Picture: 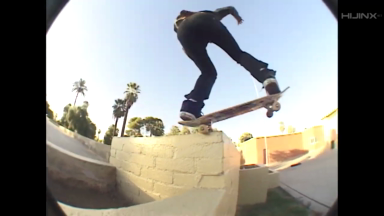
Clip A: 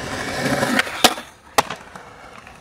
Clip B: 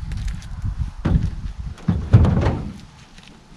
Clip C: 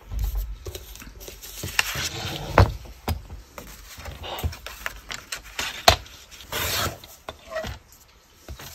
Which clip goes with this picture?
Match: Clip A